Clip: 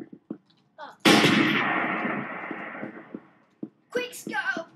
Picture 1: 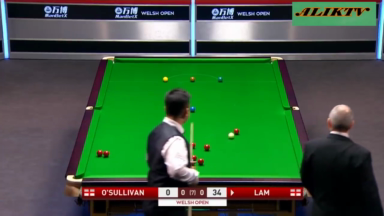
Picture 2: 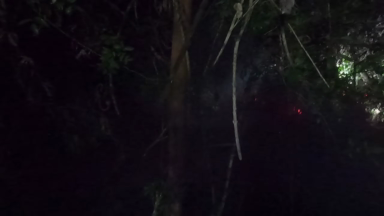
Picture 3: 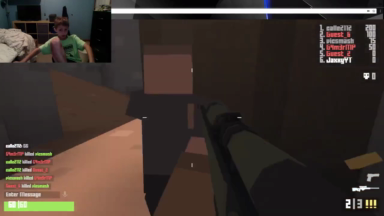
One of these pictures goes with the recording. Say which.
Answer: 3